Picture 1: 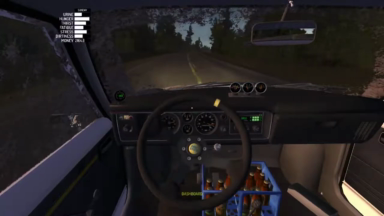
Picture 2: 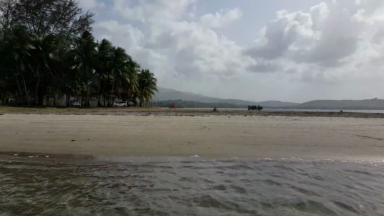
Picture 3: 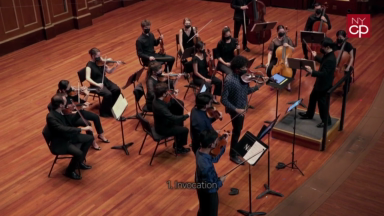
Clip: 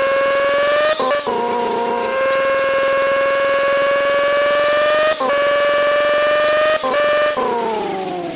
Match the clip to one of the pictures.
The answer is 1